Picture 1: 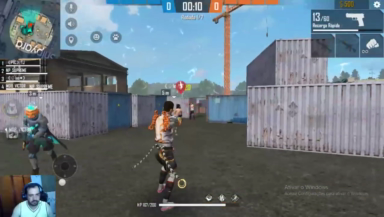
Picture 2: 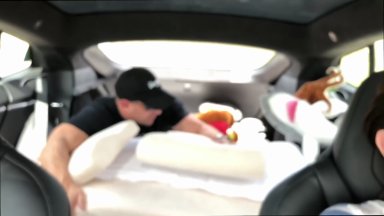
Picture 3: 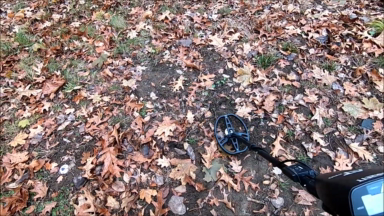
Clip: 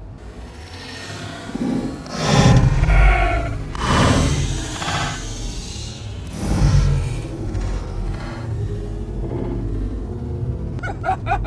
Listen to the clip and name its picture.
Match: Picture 2